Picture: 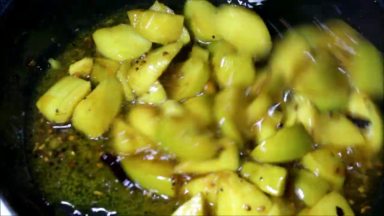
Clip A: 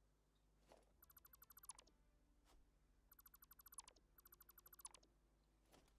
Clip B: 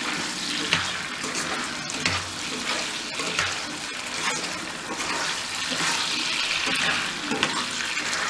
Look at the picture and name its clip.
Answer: B